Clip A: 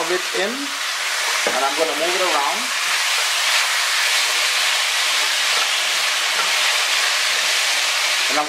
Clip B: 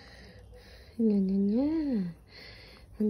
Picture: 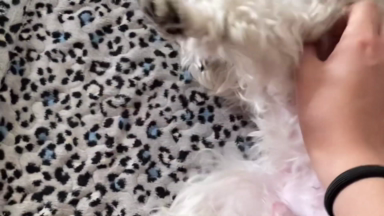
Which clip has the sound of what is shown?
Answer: B